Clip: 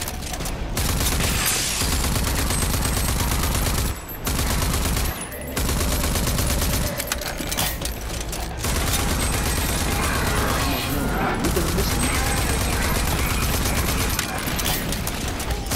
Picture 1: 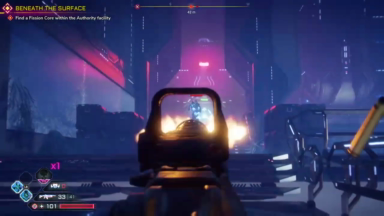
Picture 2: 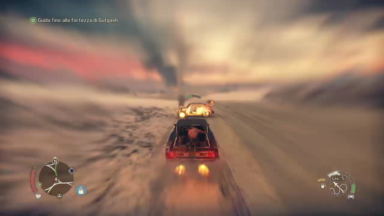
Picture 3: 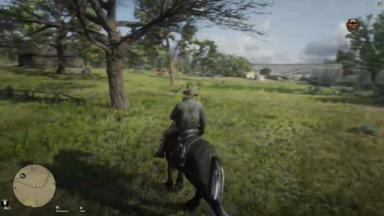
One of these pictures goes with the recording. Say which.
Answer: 1